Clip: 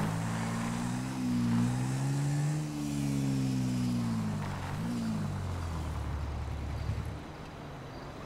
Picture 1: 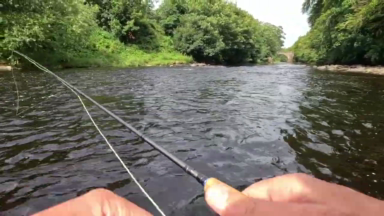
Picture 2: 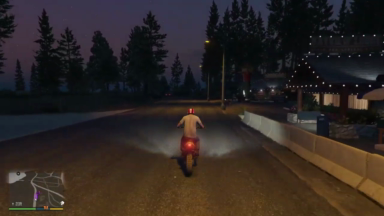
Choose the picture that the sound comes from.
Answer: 2